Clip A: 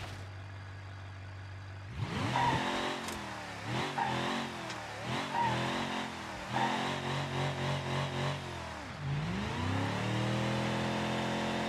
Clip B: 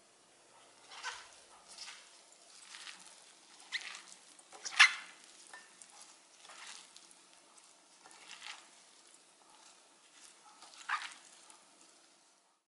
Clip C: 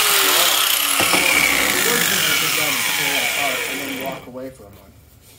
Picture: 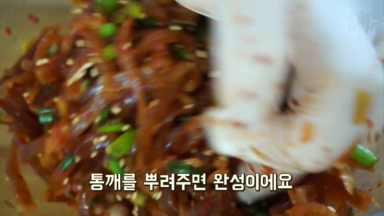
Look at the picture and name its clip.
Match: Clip B